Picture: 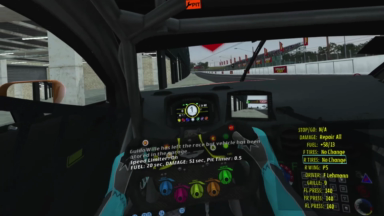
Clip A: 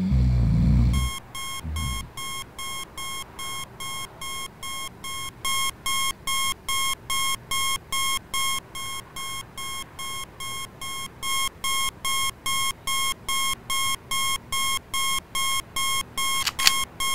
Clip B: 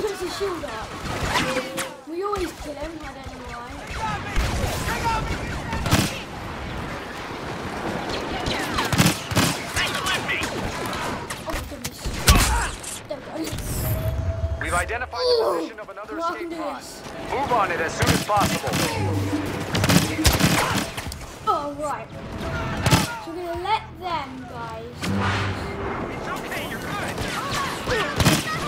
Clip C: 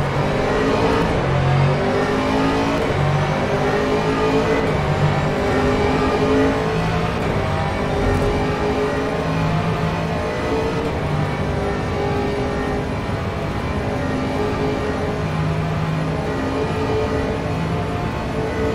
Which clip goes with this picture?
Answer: C